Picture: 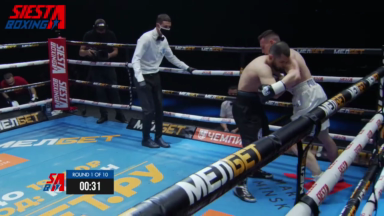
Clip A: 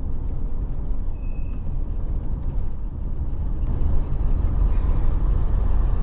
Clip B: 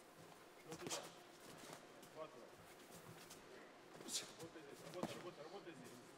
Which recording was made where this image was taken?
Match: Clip B